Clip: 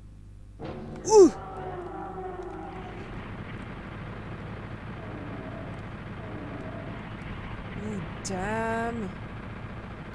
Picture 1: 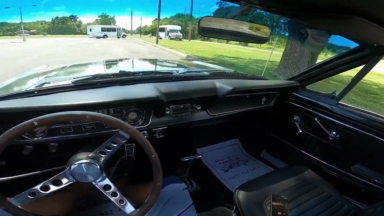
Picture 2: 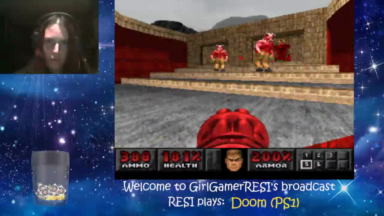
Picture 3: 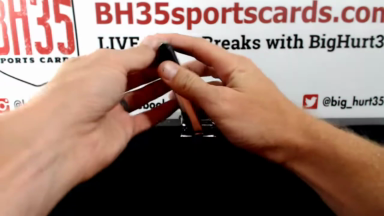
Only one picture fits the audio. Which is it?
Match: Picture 2